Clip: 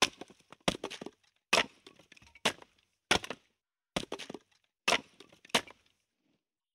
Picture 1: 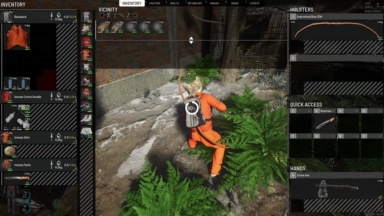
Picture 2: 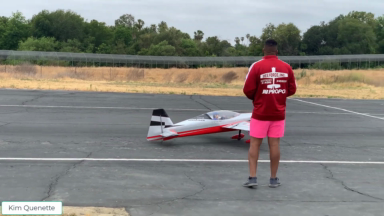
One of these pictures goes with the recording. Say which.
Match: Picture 1